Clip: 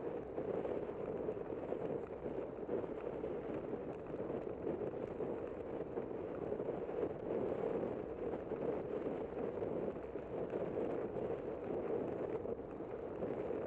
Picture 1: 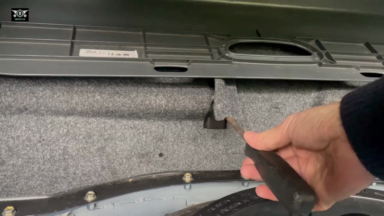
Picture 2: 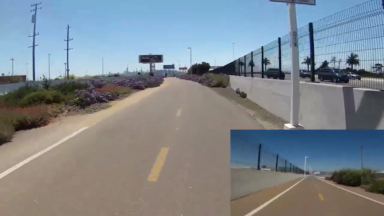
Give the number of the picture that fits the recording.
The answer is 2